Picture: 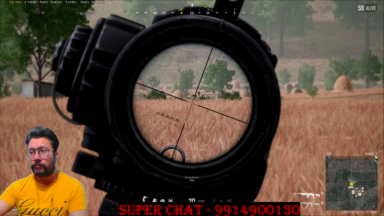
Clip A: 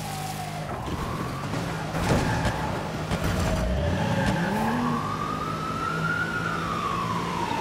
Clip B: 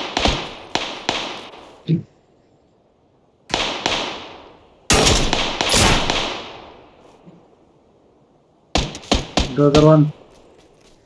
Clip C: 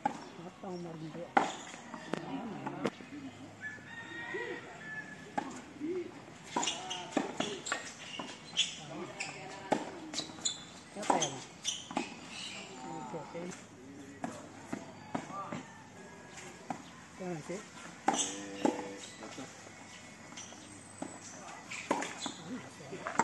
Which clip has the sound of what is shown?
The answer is B